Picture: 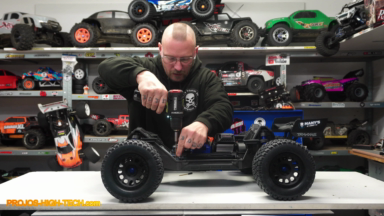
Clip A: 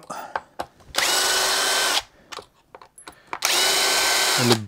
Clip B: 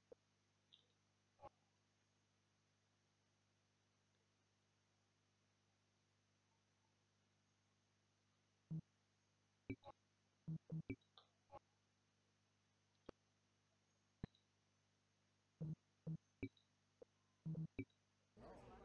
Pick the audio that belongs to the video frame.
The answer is A